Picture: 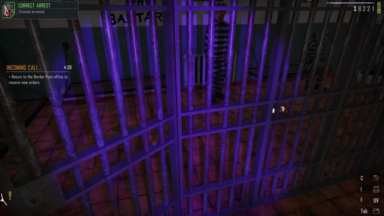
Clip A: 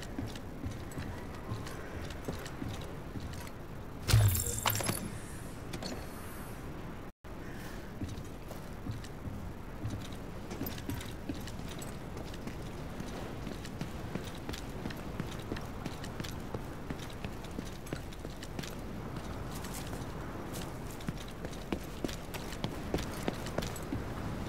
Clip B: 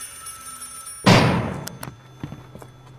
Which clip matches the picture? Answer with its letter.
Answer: B